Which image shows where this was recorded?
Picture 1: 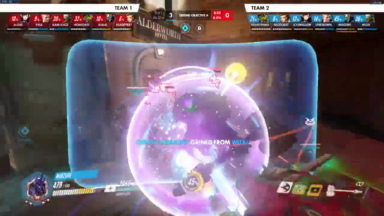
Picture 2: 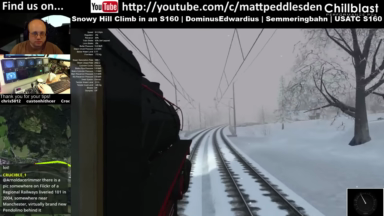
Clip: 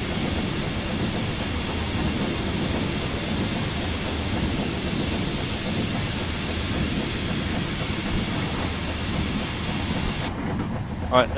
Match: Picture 2